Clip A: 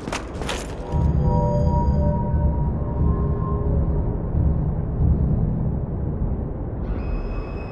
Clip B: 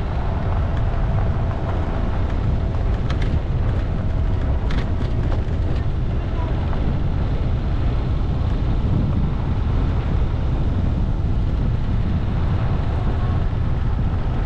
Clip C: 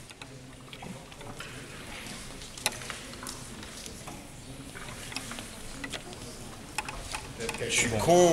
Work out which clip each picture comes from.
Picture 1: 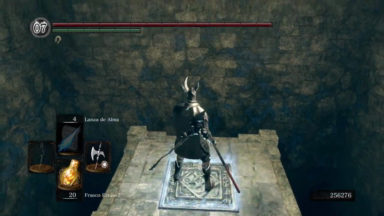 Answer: A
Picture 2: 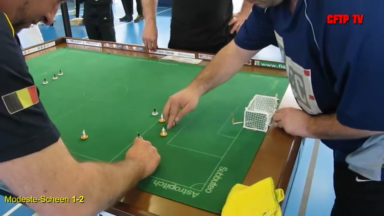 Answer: C